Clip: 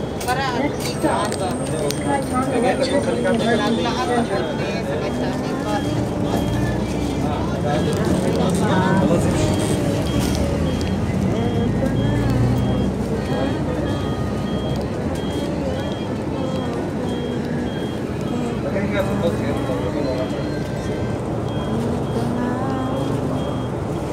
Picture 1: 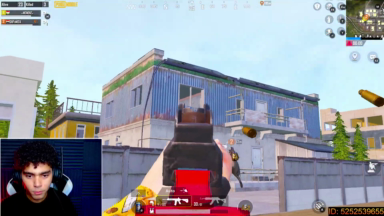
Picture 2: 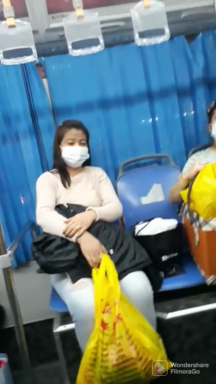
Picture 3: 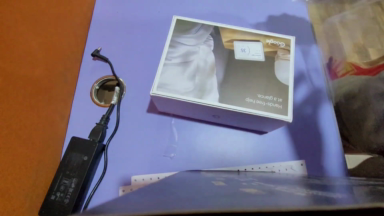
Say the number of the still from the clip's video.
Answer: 2